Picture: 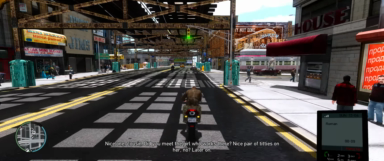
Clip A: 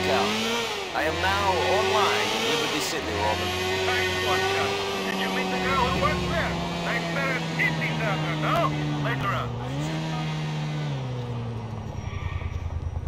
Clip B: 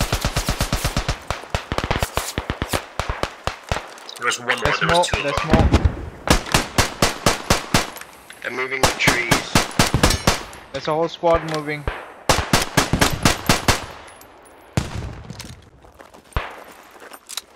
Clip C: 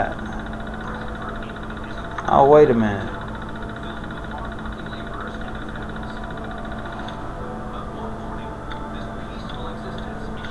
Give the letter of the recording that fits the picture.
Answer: A